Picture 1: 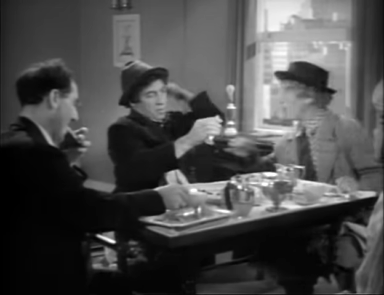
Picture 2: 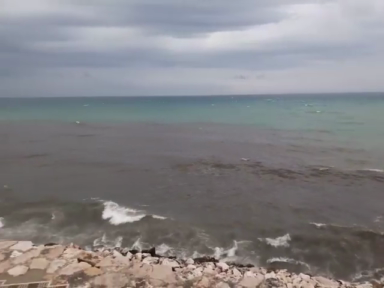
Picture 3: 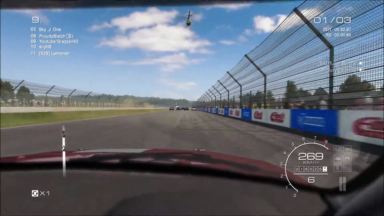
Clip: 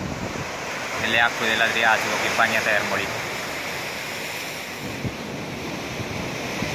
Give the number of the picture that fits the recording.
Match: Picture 2